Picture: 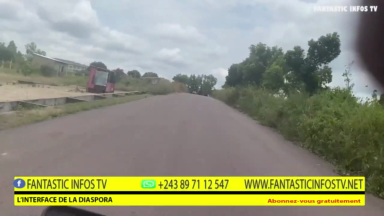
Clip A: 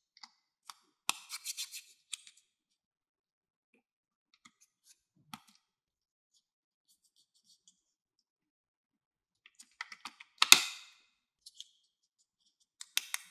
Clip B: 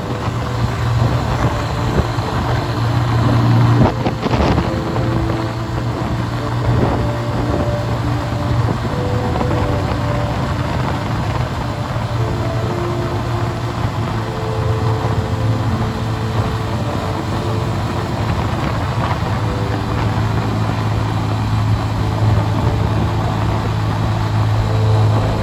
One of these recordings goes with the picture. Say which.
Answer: B